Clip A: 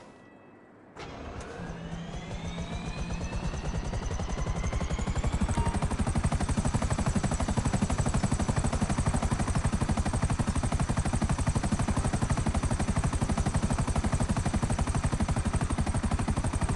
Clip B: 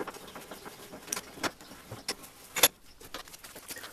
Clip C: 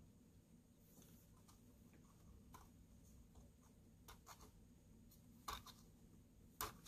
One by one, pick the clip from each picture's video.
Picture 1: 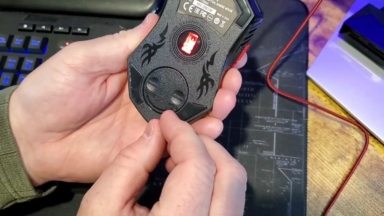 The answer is C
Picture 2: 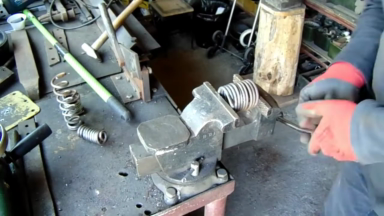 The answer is B